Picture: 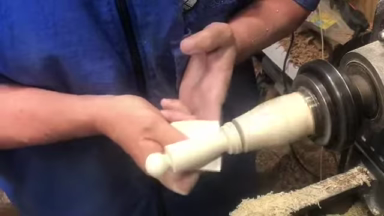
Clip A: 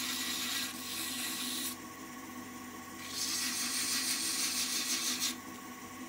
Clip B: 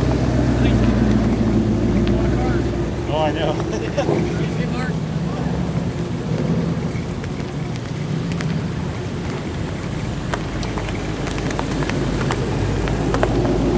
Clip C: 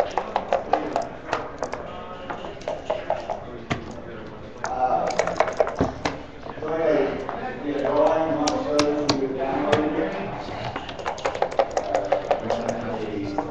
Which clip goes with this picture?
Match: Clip A